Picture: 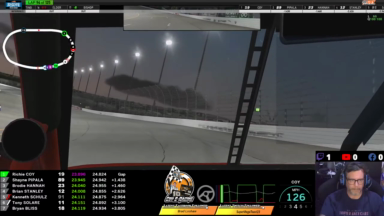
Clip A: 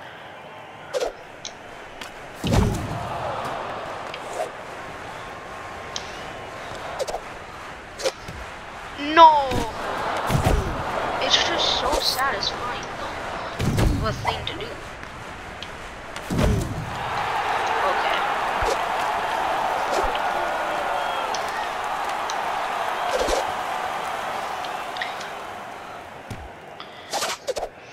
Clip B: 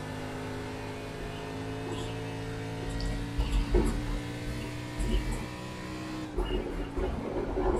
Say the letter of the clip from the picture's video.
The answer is B